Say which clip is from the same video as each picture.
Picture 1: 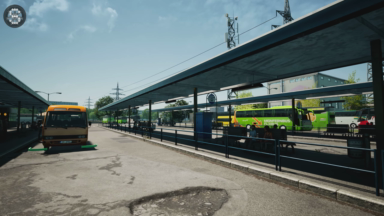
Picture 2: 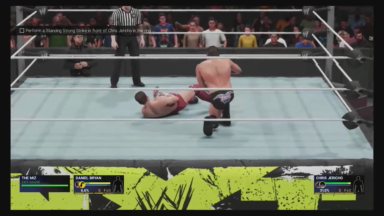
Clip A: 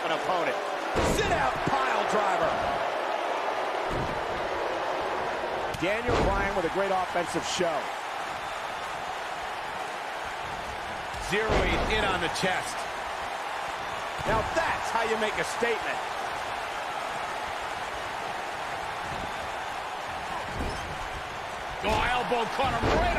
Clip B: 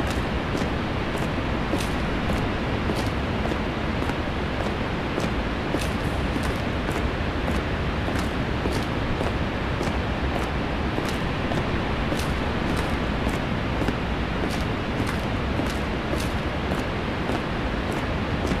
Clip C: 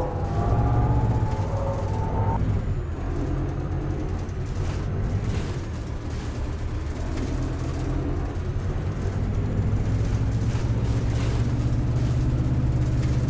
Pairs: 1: B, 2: A